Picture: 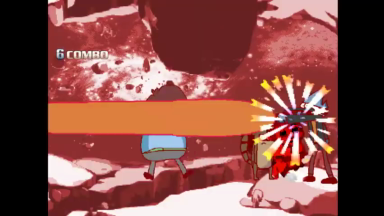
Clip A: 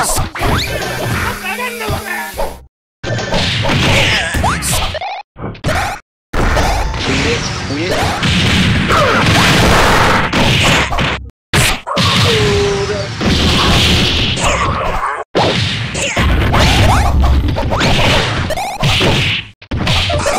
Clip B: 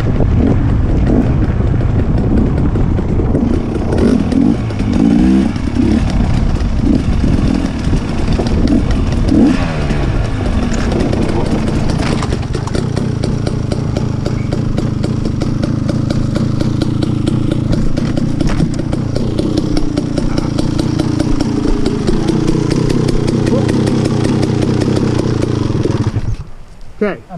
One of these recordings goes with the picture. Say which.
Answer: A